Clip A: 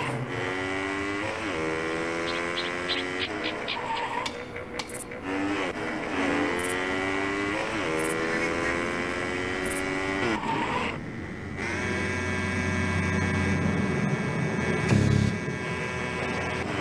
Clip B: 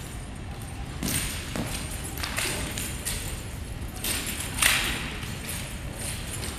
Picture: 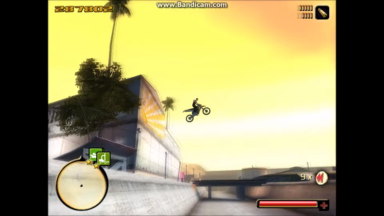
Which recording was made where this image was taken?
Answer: A